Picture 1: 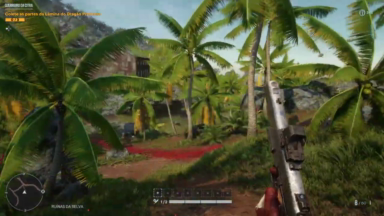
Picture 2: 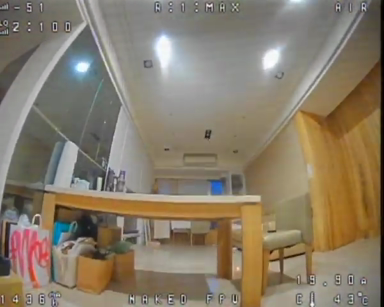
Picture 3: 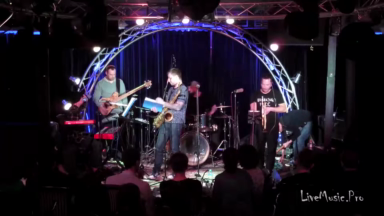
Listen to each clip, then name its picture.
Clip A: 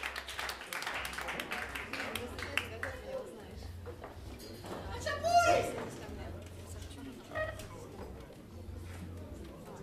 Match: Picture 3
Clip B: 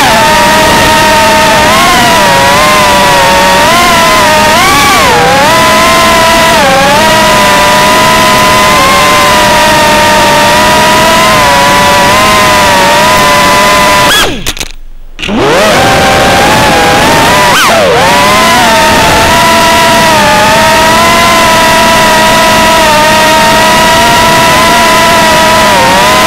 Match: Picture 2